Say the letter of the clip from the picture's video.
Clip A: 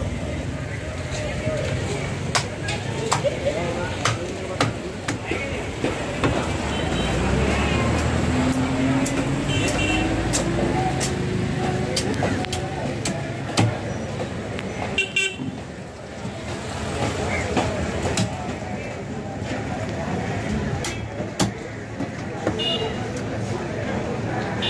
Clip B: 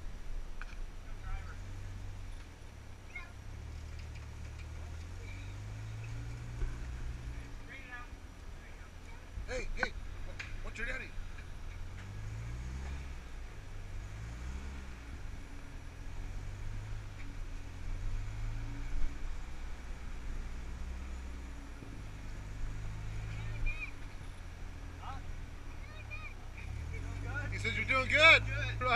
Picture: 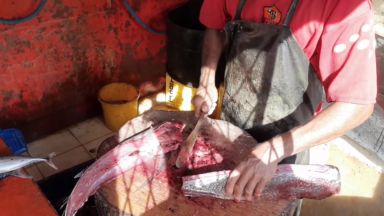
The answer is A